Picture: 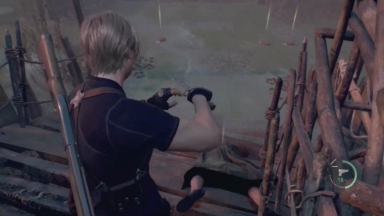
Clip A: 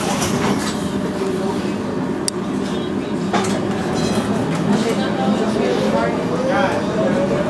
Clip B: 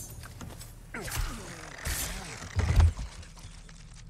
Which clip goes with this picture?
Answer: B